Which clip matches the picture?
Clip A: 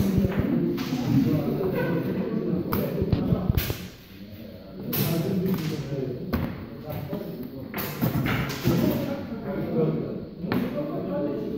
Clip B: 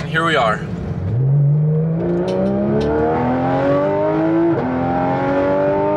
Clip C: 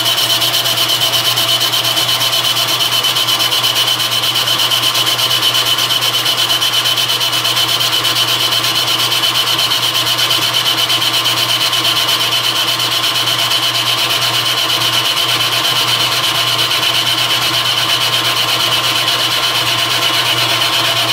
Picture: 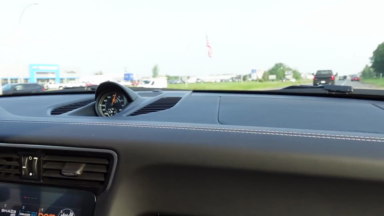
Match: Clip B